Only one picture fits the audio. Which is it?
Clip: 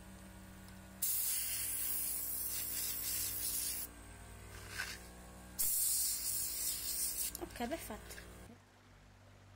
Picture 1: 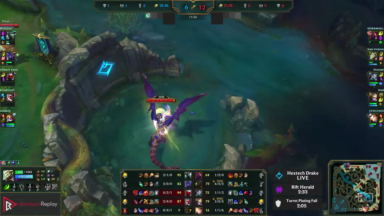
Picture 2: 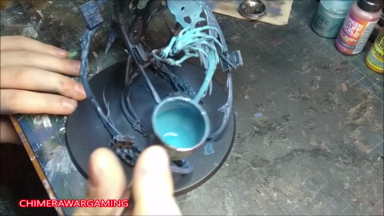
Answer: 2